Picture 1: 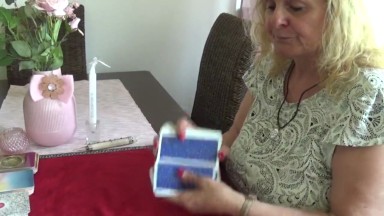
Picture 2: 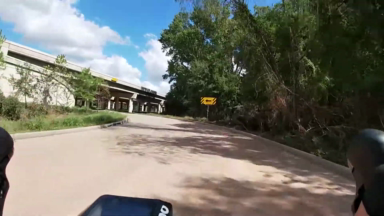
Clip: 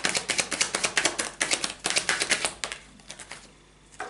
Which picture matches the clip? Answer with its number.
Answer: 1